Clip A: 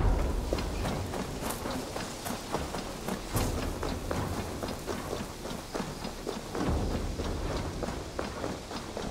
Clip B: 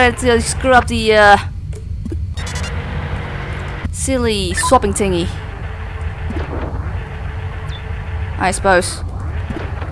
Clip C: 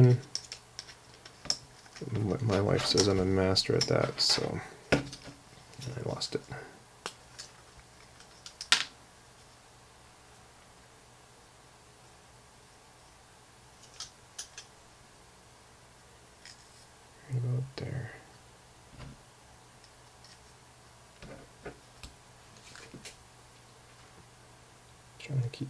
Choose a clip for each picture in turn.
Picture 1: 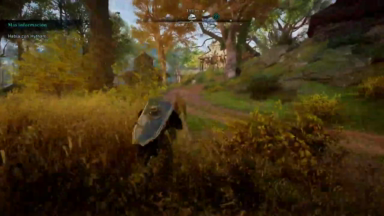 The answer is A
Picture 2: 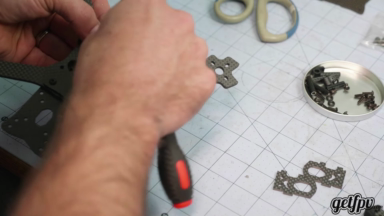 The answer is C